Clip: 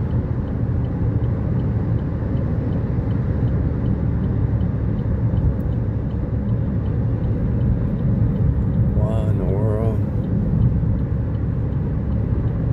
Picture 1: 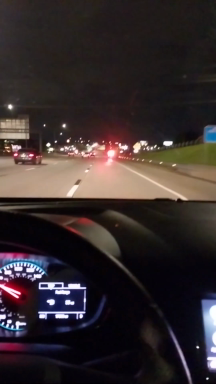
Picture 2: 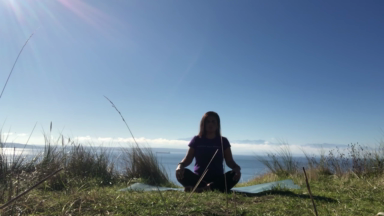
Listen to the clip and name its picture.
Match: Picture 1